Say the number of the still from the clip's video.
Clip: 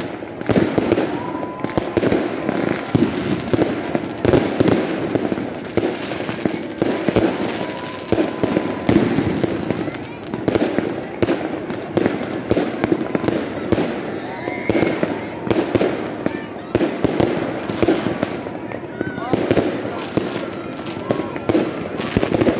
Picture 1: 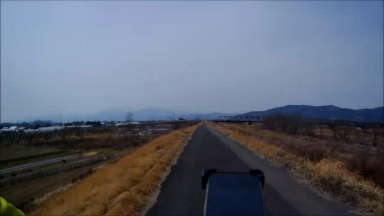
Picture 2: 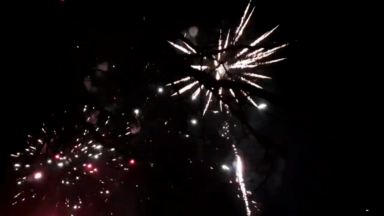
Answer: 2